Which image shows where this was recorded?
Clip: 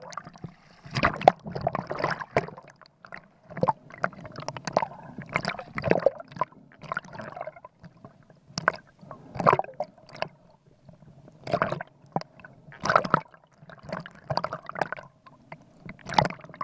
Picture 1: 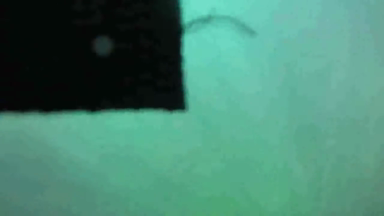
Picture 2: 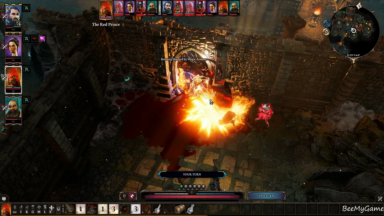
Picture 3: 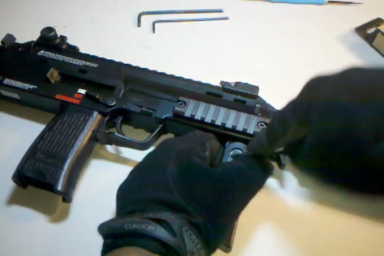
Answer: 1